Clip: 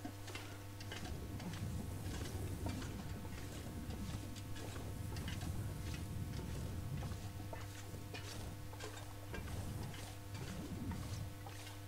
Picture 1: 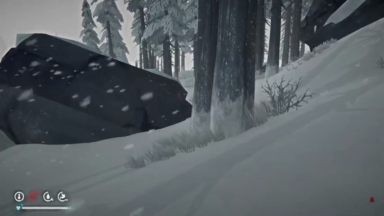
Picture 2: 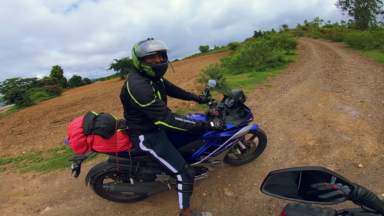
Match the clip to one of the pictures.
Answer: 1